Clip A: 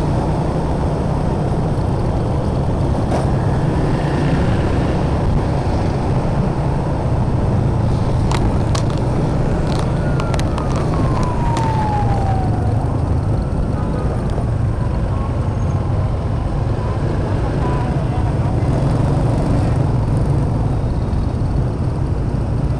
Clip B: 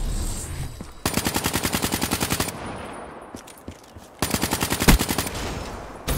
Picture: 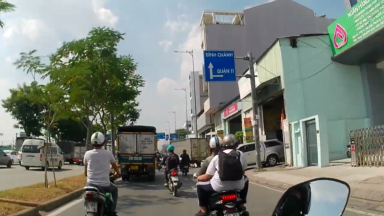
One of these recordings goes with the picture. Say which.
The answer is A